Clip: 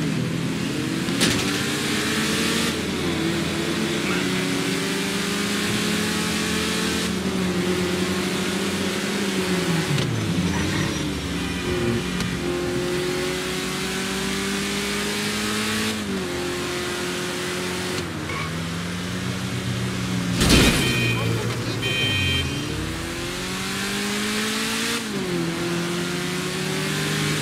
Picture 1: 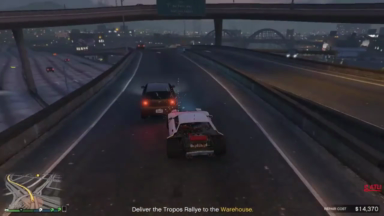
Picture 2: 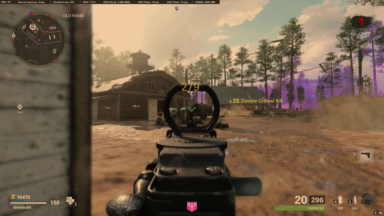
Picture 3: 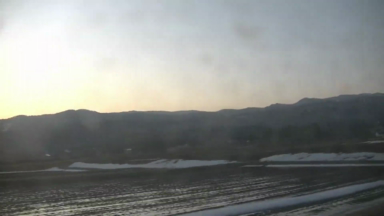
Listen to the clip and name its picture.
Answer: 1